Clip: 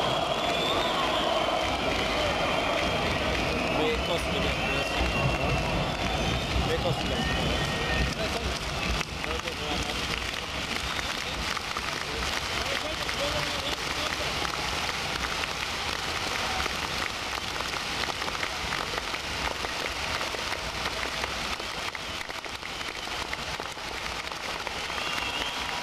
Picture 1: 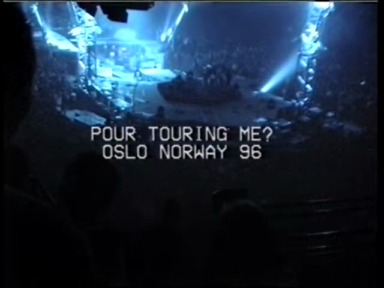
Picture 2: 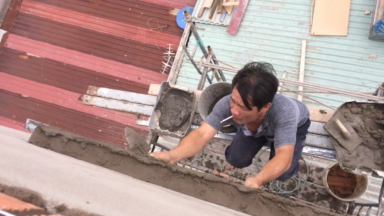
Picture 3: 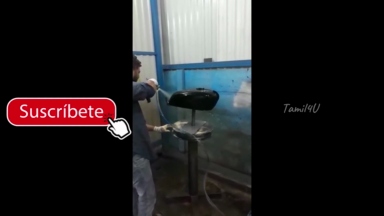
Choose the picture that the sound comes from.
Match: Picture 1